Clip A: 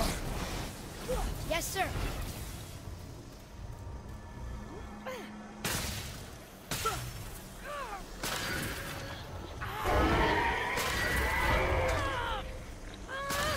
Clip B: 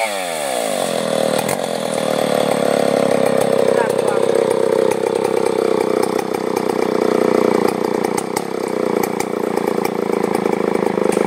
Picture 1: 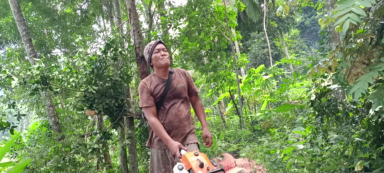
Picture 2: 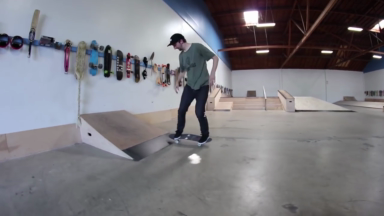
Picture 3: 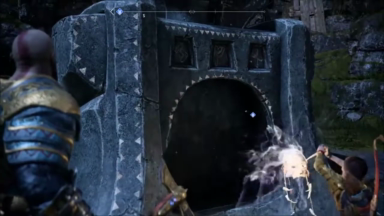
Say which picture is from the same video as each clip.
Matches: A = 3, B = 1